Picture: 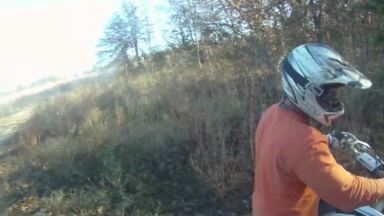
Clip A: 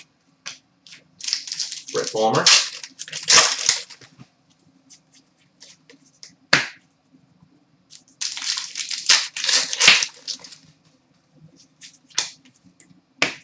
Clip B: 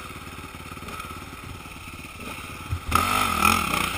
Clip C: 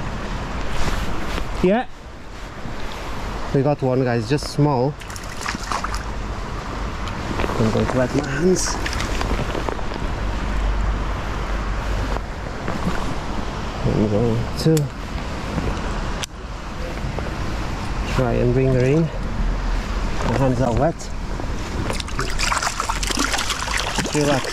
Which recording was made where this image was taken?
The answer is B